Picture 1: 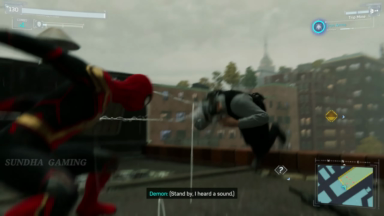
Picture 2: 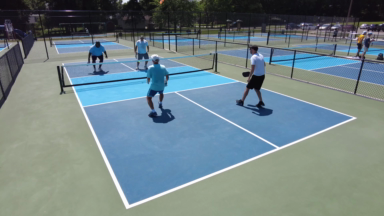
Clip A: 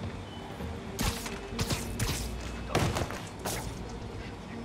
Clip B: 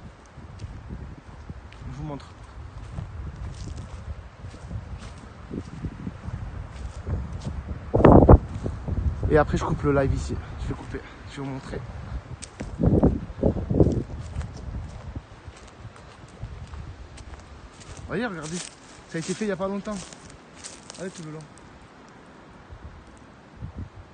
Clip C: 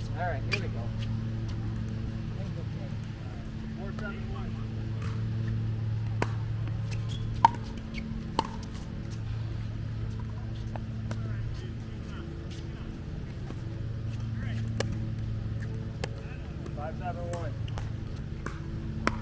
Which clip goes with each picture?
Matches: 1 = A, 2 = C